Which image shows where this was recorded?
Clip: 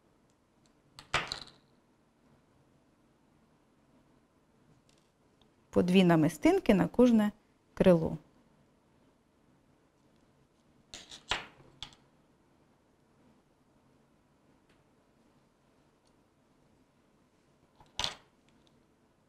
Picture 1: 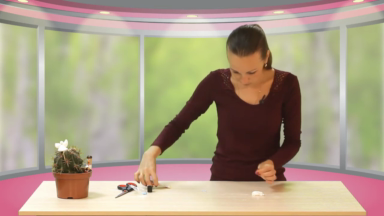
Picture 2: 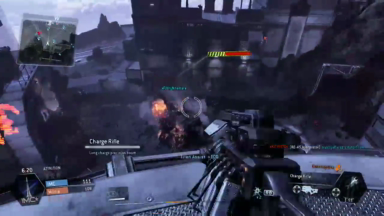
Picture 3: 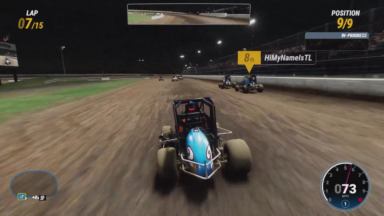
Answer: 1